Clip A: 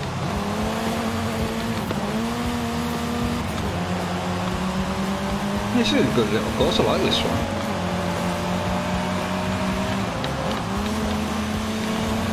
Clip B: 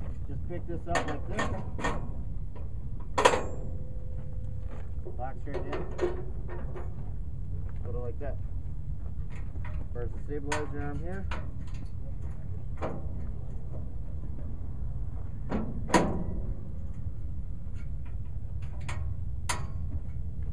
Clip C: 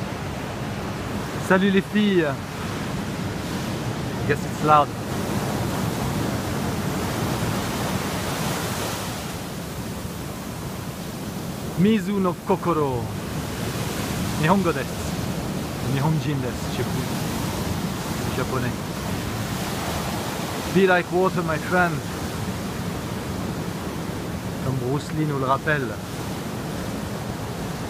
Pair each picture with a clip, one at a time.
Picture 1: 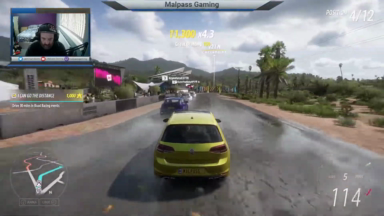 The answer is A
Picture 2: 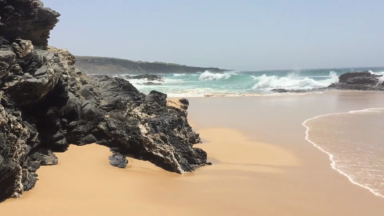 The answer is C